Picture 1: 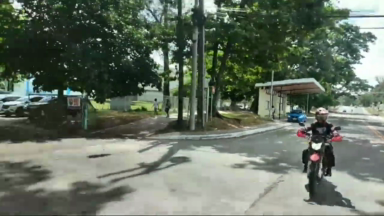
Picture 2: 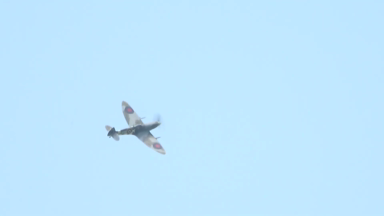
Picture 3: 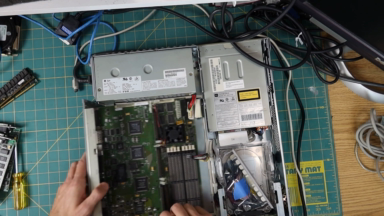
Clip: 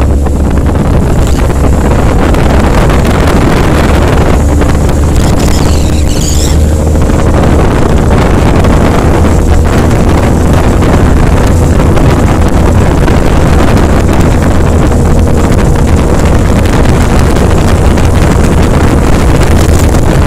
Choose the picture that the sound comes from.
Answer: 1